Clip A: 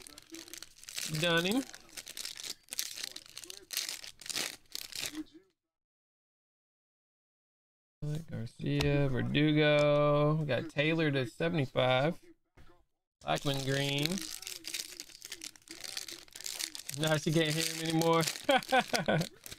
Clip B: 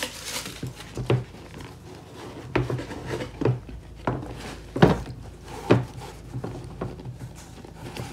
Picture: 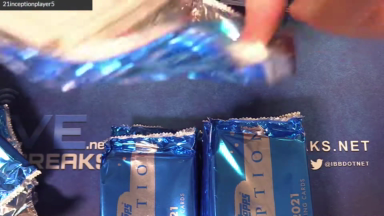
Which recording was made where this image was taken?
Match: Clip A